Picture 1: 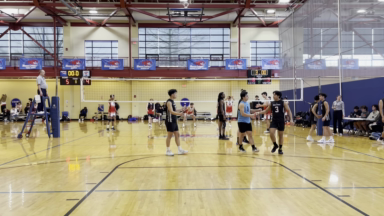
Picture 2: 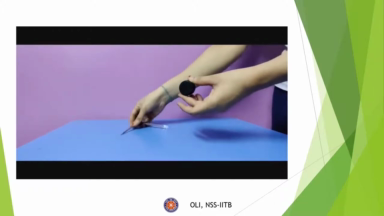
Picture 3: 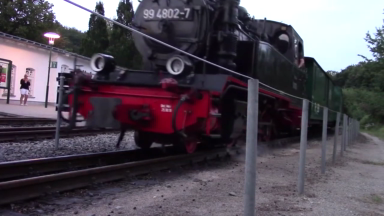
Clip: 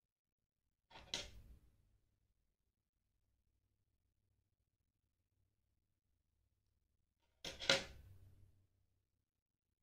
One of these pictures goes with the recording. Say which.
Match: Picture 2